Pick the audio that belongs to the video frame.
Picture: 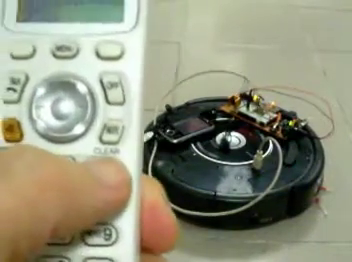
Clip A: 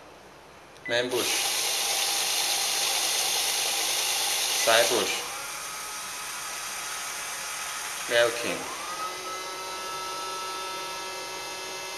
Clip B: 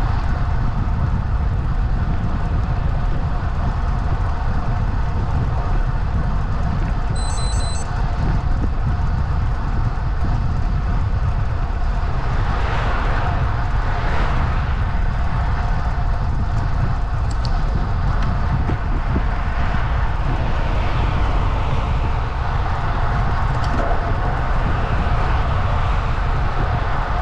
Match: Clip A